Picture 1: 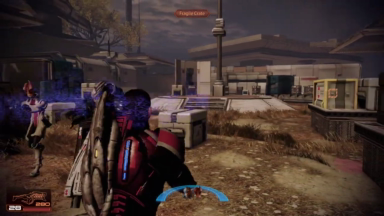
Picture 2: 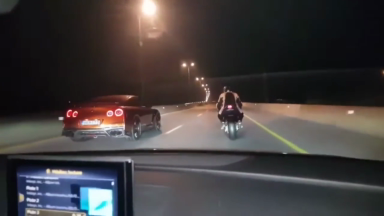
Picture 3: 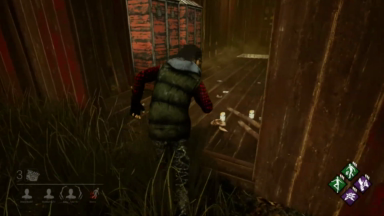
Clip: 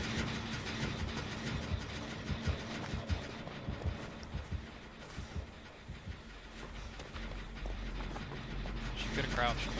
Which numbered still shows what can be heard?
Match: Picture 3